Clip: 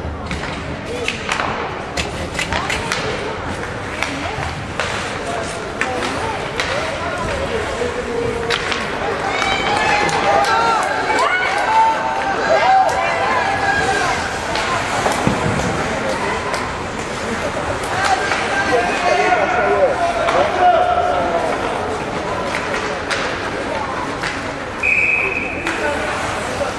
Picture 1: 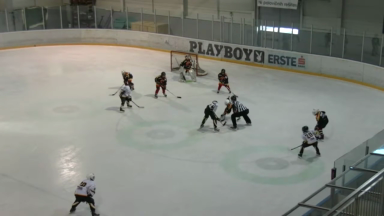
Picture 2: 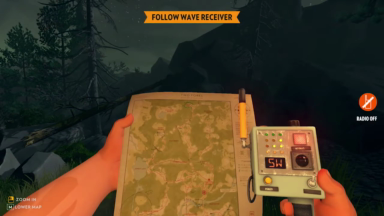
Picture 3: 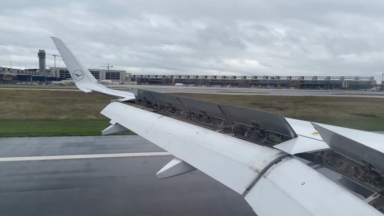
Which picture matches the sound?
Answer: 1